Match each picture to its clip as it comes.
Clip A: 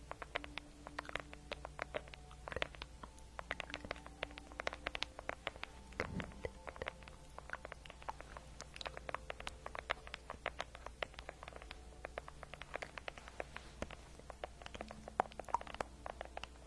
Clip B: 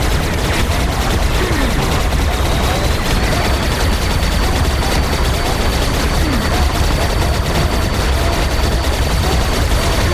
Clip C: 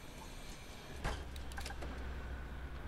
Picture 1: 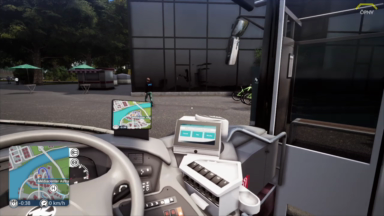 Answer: C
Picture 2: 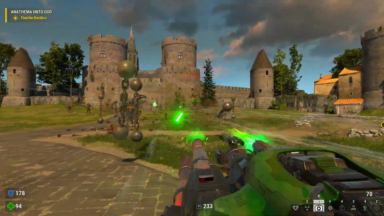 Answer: B